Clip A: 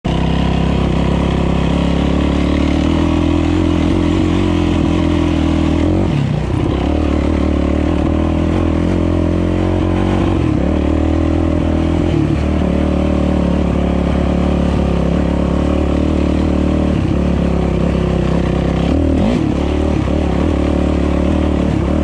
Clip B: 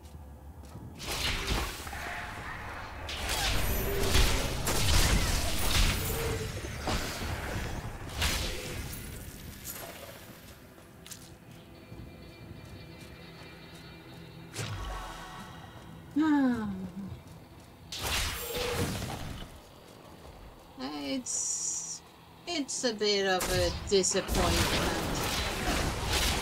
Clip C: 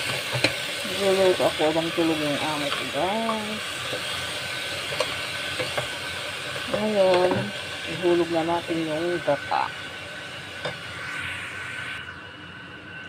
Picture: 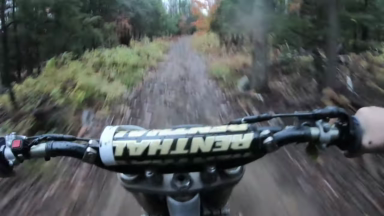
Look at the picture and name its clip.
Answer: A